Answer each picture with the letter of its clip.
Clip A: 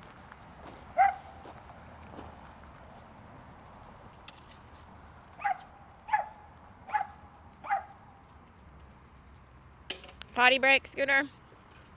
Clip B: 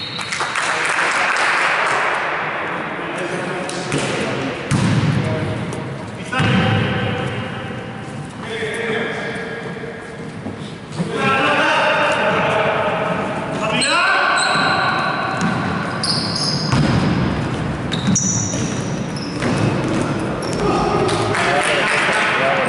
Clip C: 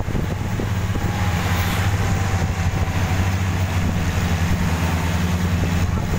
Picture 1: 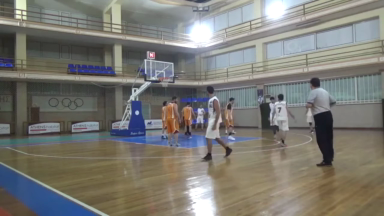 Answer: B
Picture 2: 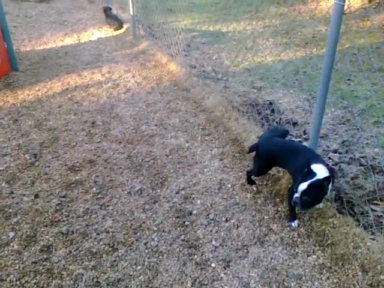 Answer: A